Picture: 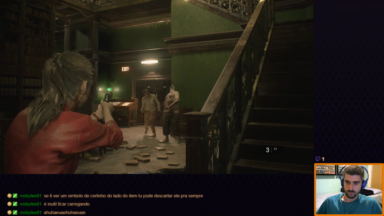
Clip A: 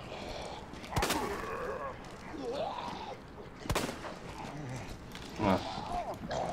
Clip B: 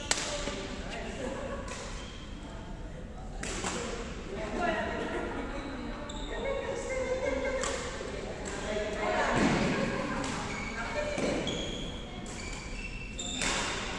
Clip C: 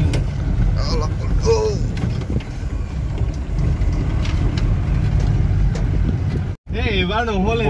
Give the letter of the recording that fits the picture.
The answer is A